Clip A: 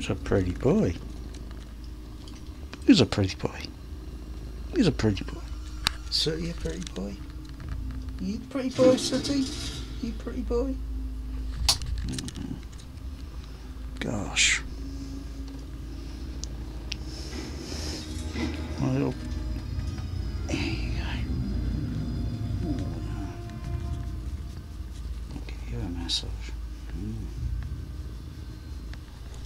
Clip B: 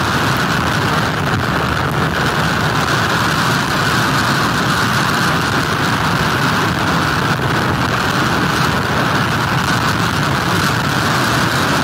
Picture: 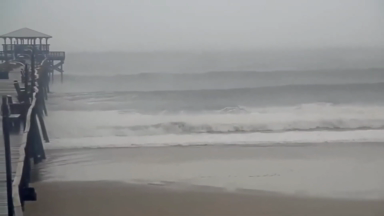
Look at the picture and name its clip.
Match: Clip B